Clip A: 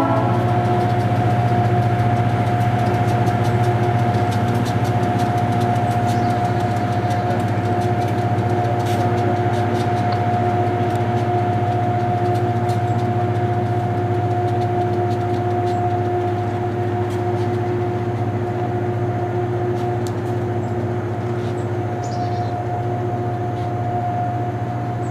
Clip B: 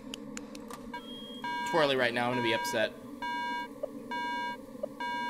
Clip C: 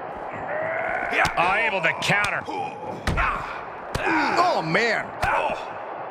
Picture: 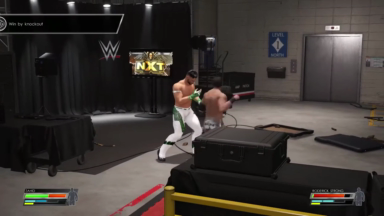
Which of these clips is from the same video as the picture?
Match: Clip C